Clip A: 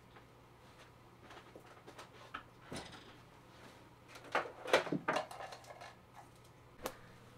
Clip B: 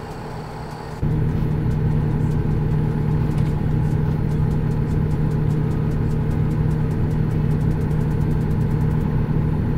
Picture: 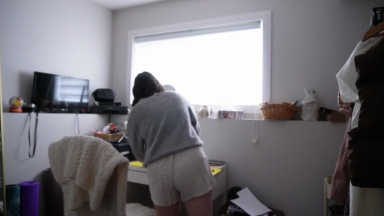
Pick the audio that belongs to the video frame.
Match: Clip A